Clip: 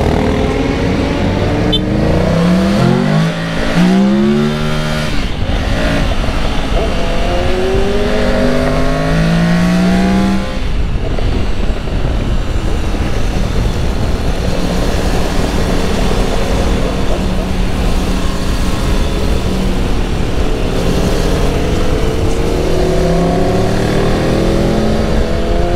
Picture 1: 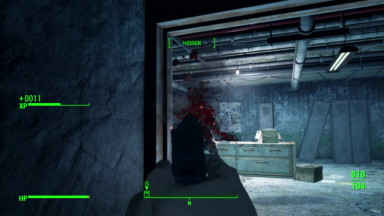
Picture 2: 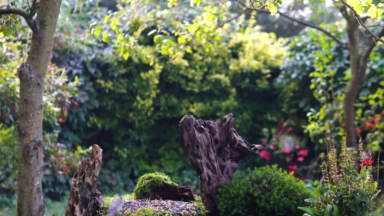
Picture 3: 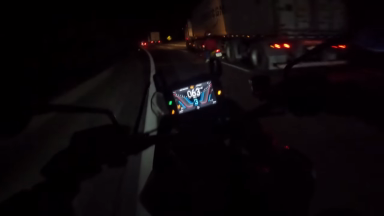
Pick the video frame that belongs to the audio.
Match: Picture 3